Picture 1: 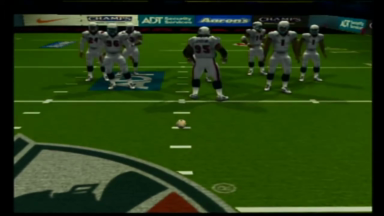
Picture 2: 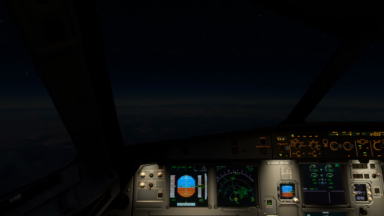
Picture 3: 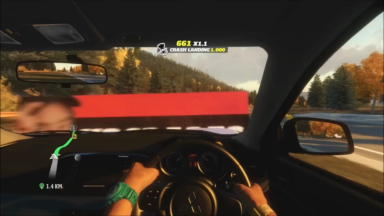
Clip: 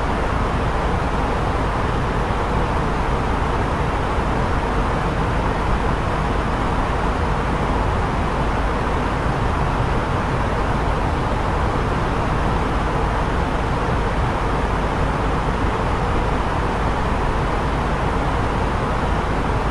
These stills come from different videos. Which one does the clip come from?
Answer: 2